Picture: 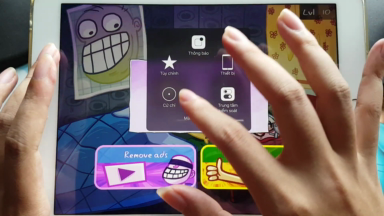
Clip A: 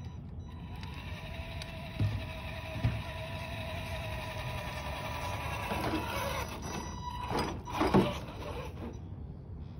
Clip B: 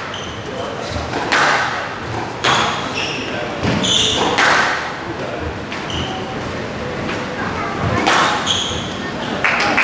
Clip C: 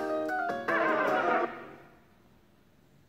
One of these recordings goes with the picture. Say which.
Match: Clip C